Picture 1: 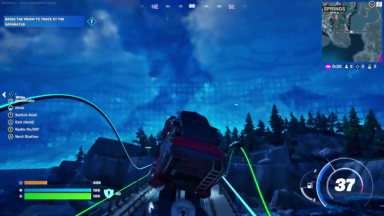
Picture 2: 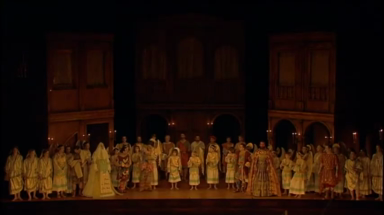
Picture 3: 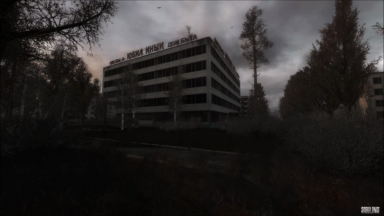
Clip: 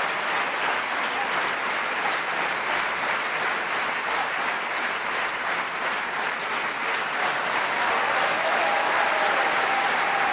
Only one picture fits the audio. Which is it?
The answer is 2